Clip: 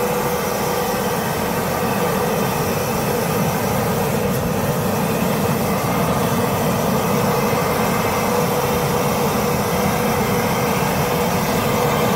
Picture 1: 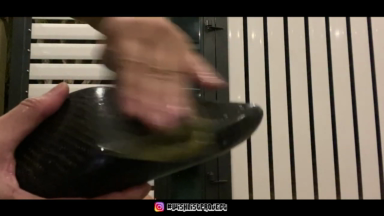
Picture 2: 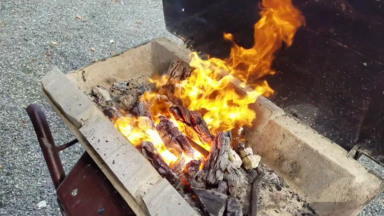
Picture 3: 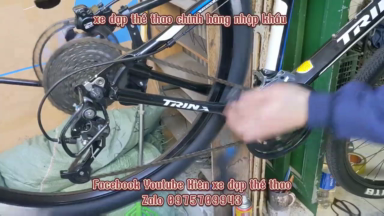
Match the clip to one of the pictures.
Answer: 2